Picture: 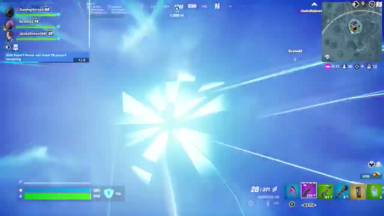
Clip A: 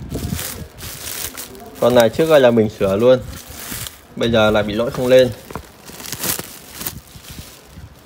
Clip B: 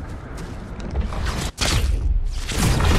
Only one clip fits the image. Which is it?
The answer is B